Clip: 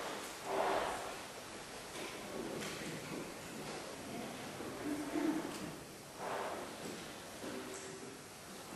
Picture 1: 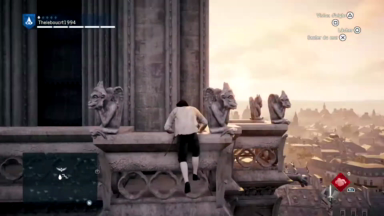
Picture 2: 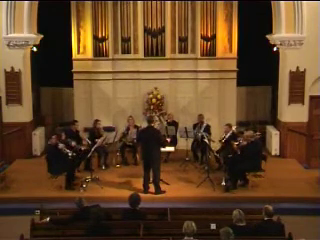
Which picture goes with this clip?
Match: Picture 2